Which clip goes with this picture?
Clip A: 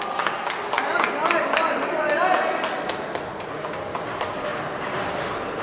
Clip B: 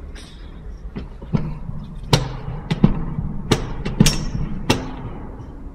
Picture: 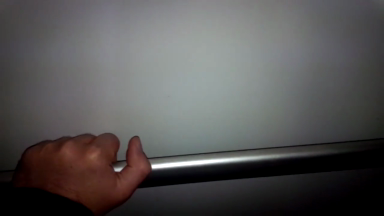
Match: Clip B